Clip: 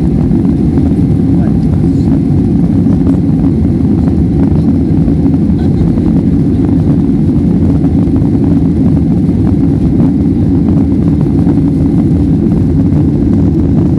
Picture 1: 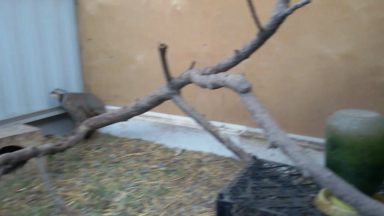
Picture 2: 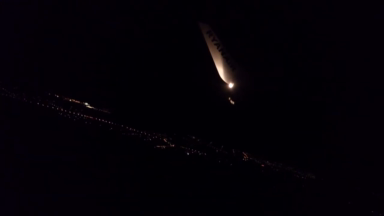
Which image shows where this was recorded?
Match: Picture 2